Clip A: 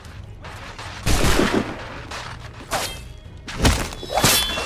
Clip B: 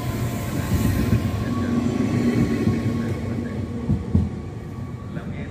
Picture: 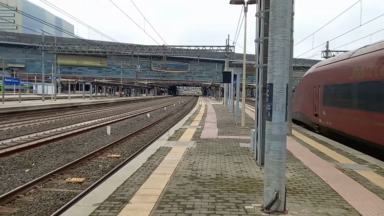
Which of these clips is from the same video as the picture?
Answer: B